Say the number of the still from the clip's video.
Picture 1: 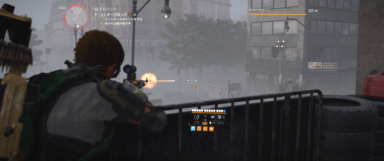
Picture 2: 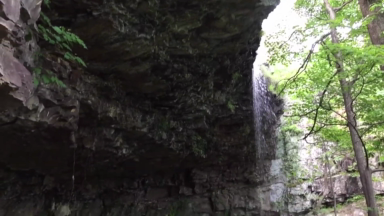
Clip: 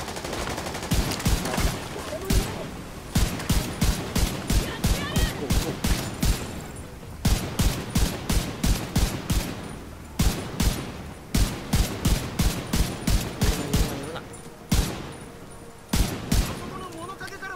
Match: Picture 1